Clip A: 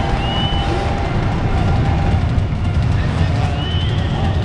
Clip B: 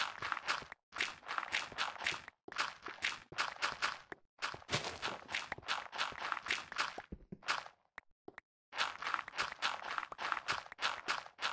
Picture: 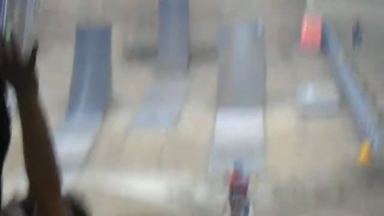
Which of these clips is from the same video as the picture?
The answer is A